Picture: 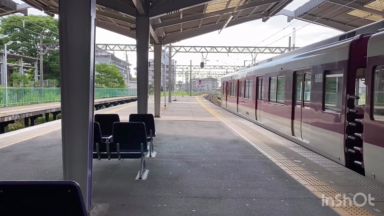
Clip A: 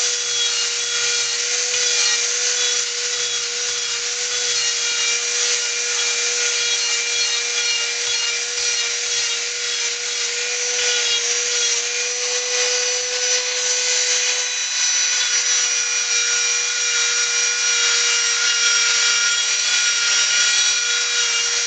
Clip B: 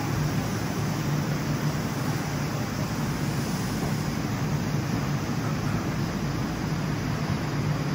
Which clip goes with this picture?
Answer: B